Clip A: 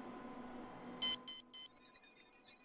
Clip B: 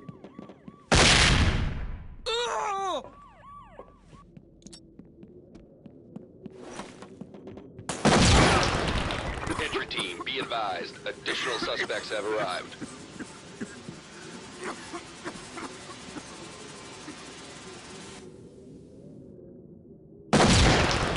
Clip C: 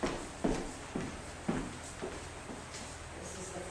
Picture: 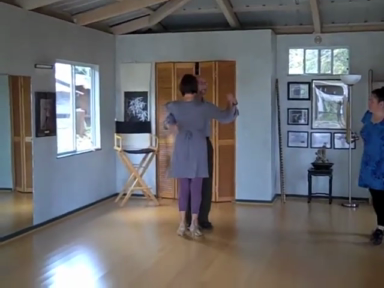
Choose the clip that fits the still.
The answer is C